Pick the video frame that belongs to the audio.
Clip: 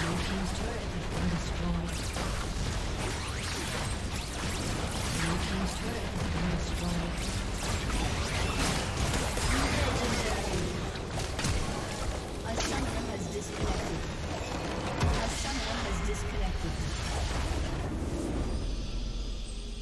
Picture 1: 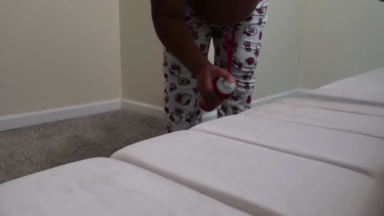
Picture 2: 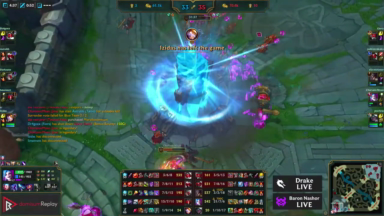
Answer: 2